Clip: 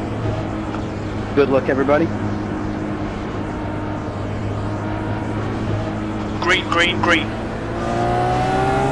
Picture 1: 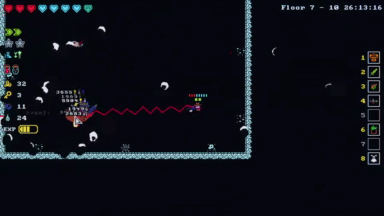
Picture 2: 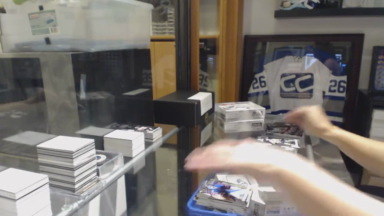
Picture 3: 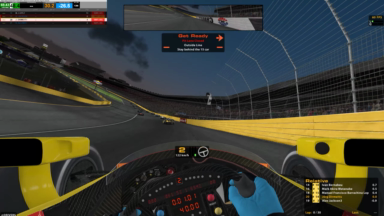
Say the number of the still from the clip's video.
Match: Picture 3